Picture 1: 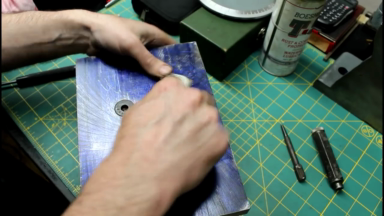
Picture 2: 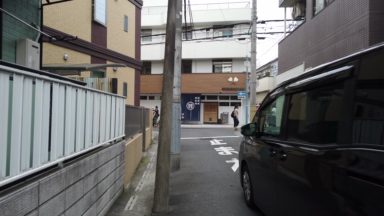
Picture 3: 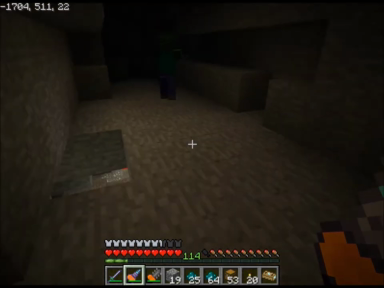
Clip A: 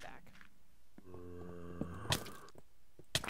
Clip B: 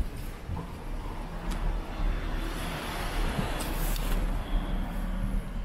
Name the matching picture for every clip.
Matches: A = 3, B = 2